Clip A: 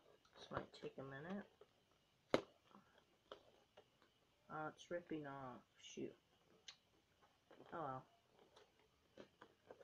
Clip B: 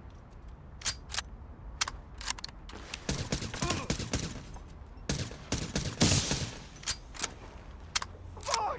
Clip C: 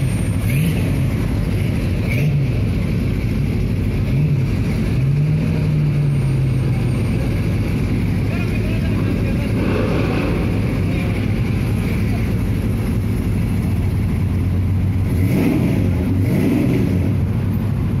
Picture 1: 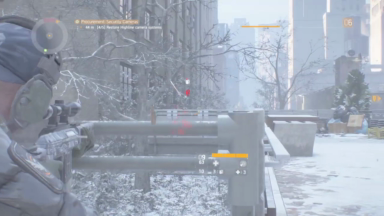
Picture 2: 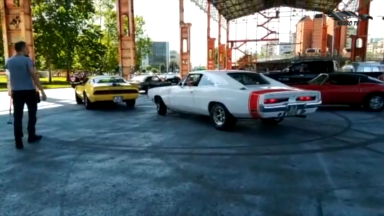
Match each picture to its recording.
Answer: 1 B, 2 C